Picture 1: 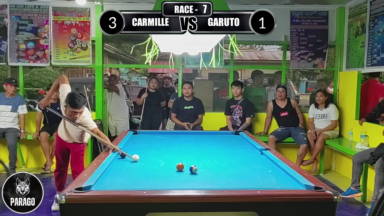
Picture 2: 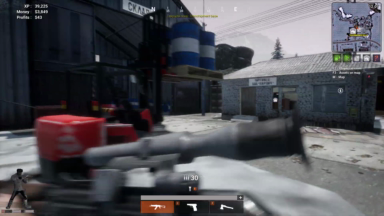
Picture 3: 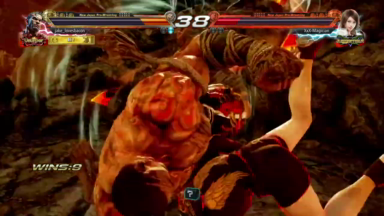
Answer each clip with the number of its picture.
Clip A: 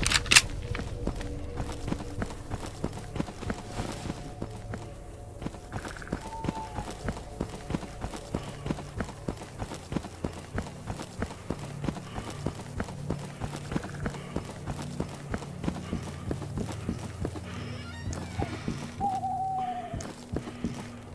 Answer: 2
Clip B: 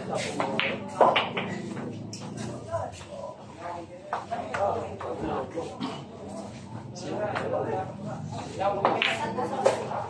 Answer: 1